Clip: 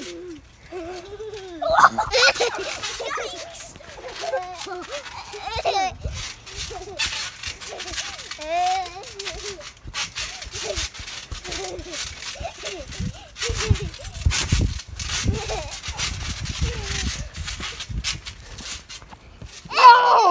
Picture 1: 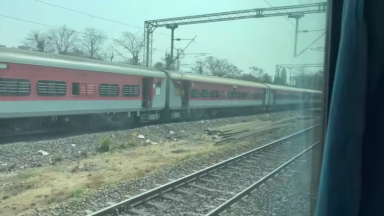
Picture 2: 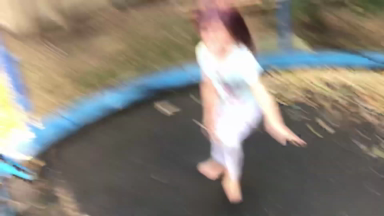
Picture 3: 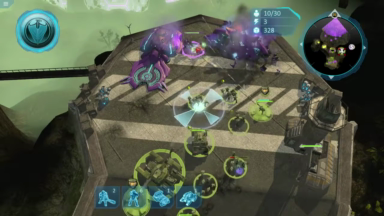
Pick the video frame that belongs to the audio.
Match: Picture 2